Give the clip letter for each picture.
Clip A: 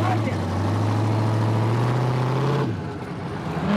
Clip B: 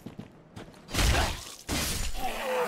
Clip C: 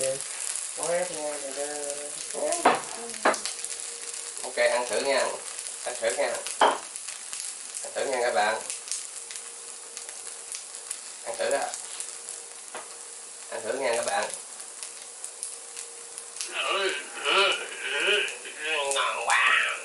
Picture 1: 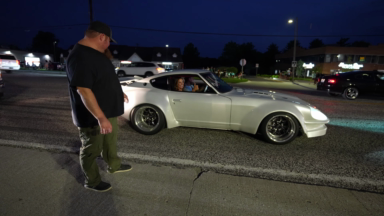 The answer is A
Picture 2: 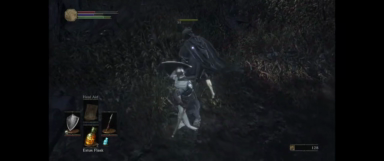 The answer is B